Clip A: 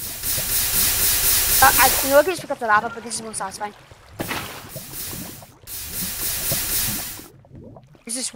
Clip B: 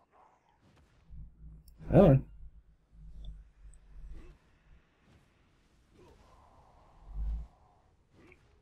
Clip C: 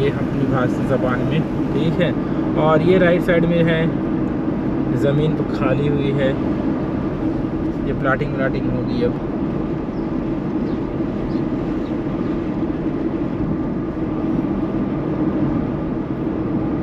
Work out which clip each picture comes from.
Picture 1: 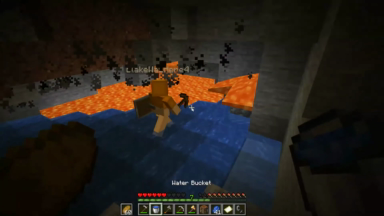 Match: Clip A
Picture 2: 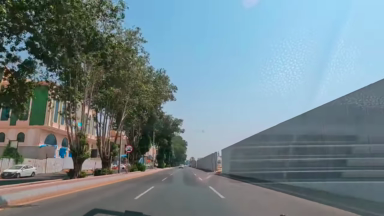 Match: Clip C